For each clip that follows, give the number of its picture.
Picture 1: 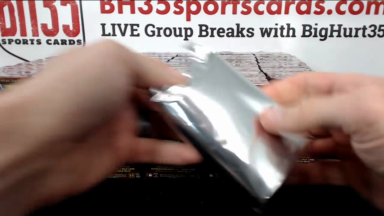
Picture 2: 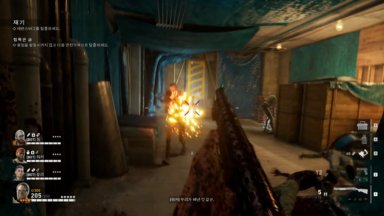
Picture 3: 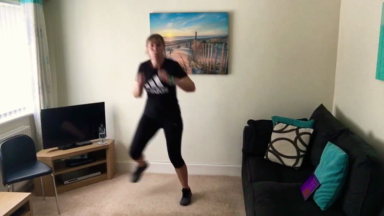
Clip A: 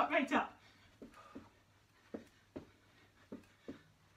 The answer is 3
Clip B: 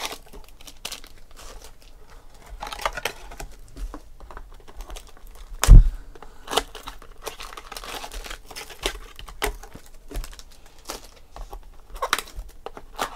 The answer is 1